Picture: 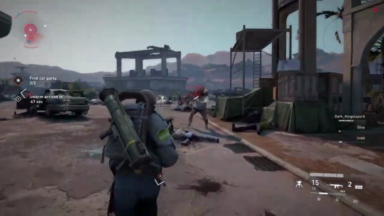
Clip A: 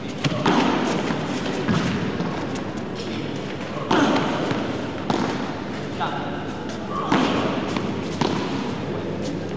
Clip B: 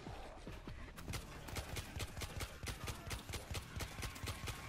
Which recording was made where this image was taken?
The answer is B